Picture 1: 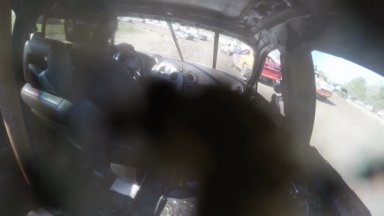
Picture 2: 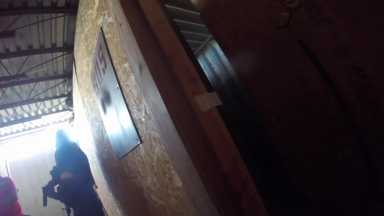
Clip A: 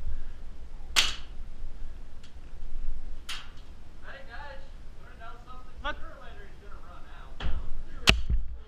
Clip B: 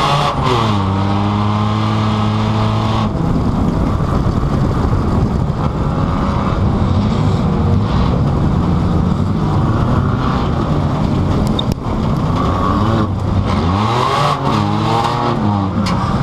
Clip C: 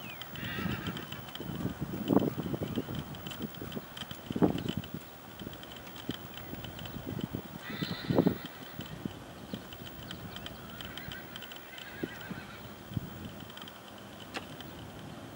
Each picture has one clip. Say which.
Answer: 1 B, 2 A